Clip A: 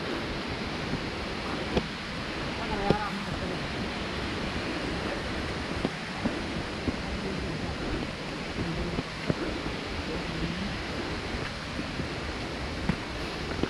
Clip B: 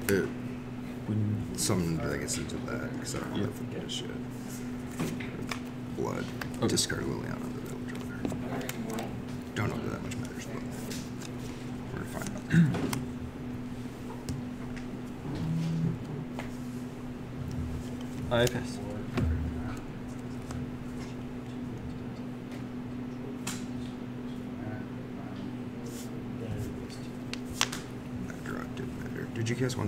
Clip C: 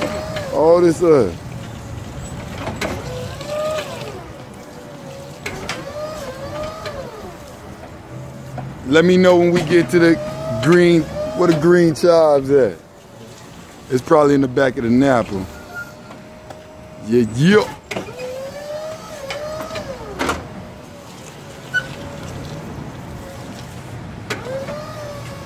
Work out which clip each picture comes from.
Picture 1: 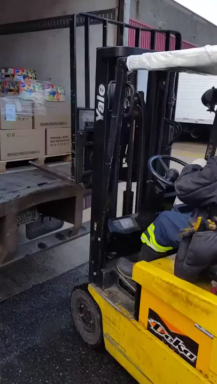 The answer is C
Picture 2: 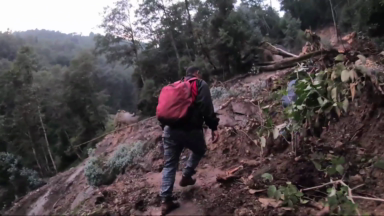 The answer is A